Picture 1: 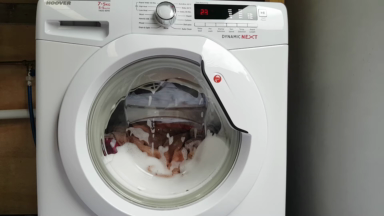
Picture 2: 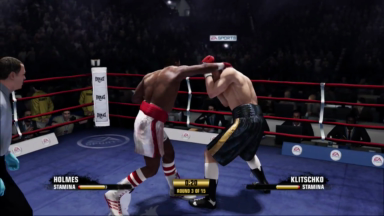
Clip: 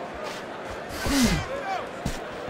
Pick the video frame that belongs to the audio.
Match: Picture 2